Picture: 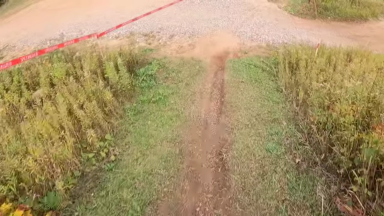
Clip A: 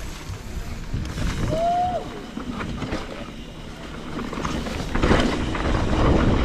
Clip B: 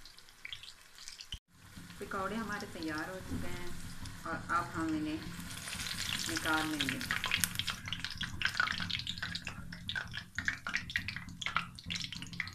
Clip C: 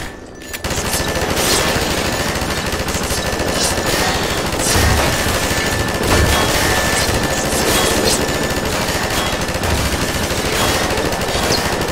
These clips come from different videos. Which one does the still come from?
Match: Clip A